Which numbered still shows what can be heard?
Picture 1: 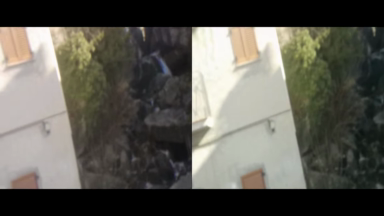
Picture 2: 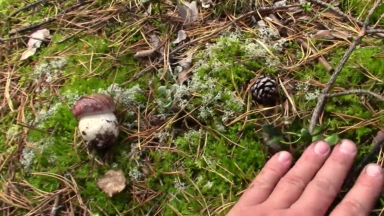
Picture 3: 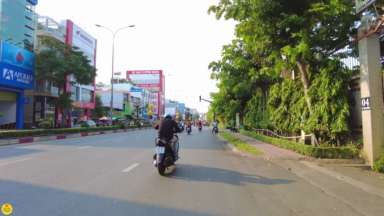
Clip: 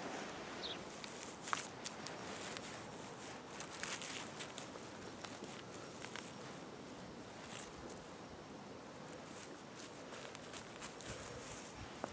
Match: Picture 2